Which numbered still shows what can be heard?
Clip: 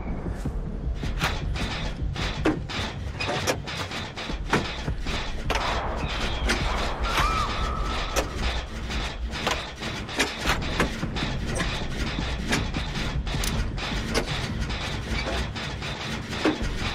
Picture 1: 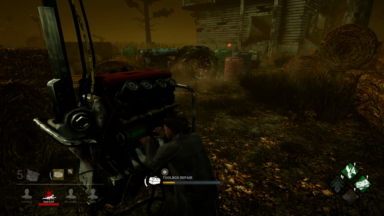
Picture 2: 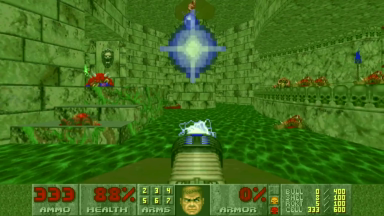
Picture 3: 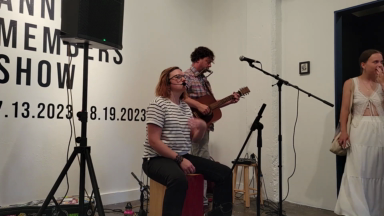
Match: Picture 1